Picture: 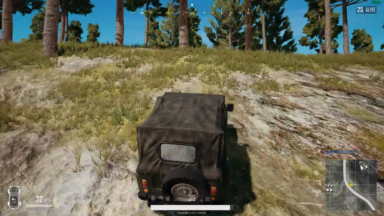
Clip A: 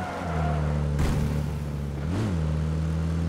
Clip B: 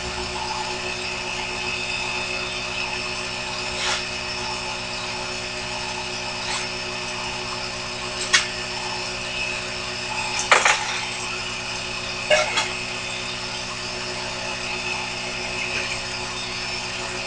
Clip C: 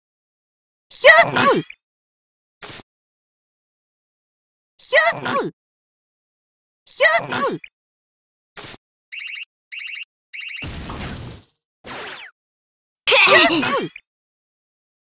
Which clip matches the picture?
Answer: A